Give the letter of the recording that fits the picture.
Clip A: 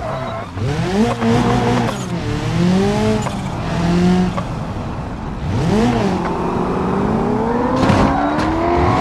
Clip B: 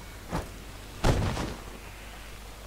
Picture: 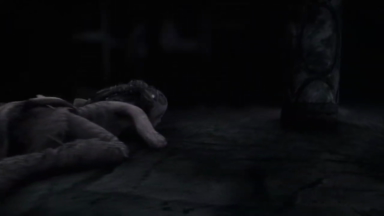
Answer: B